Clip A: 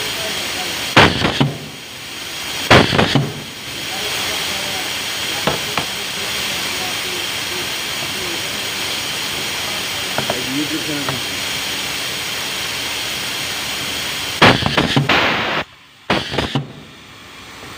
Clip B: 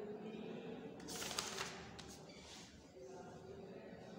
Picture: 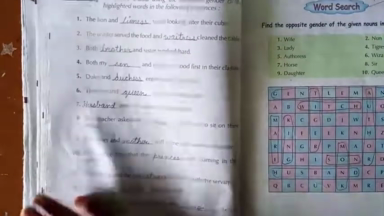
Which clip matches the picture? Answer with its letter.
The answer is B